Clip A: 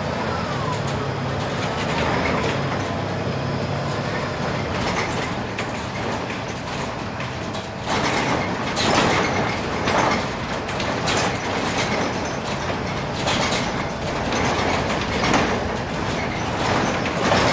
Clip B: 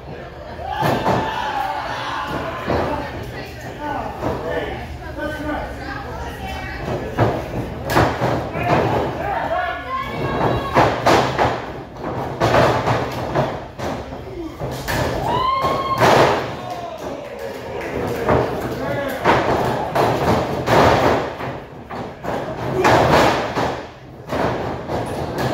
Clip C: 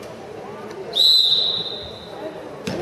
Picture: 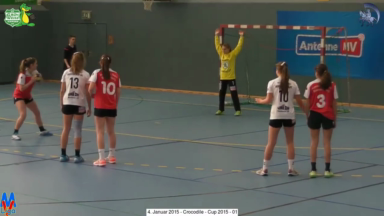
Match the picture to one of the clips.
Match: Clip C